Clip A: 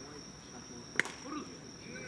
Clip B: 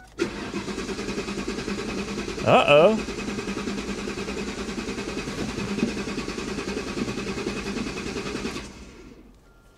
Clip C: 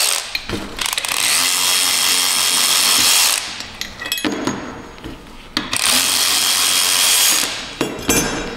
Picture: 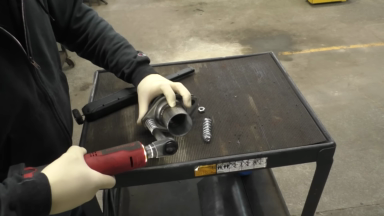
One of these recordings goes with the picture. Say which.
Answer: C